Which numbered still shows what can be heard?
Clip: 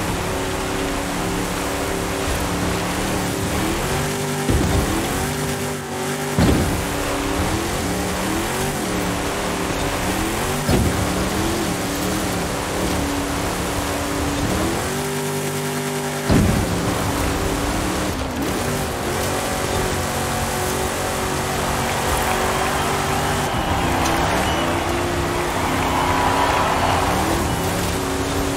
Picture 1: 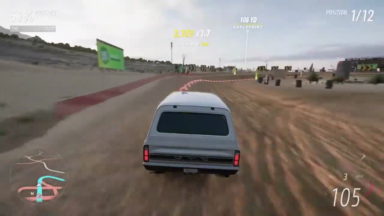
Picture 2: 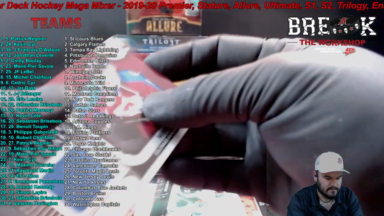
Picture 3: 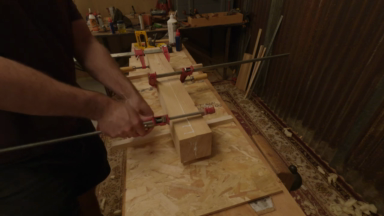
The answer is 1